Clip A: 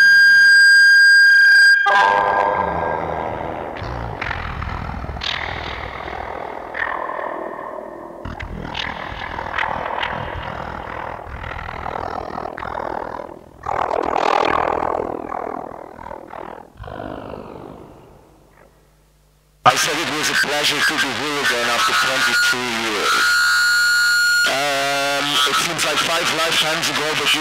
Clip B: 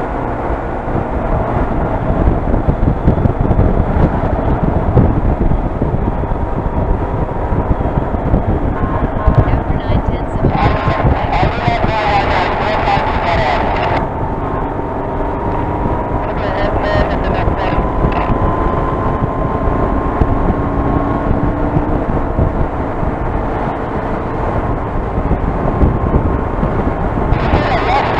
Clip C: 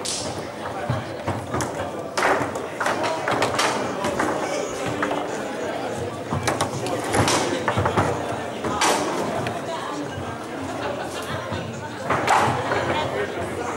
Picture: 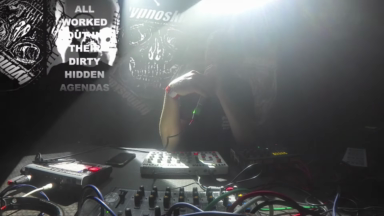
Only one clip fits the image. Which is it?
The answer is A